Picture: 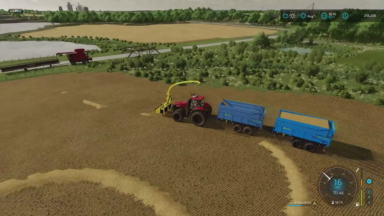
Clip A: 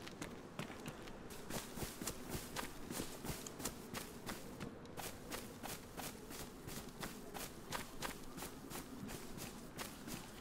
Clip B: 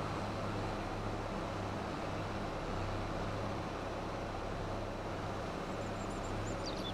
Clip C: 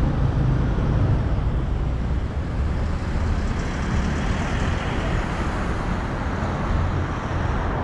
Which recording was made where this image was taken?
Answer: B